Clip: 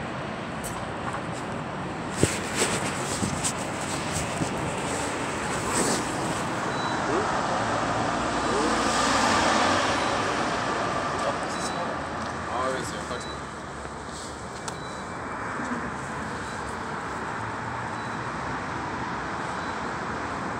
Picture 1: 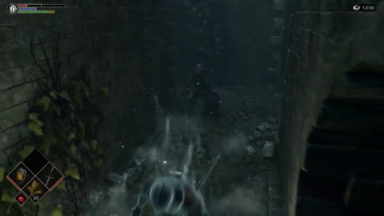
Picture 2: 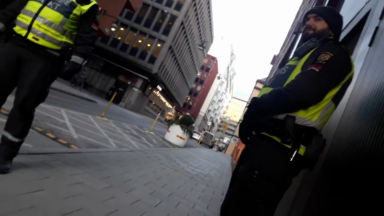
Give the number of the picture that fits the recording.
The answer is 2